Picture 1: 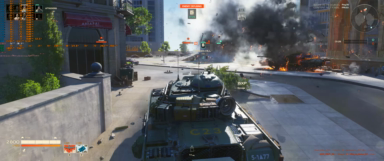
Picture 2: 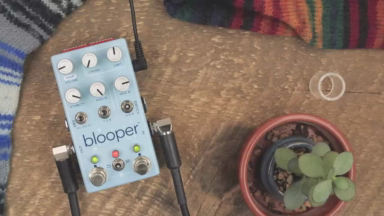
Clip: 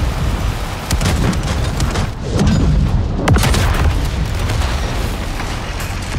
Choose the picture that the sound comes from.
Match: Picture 1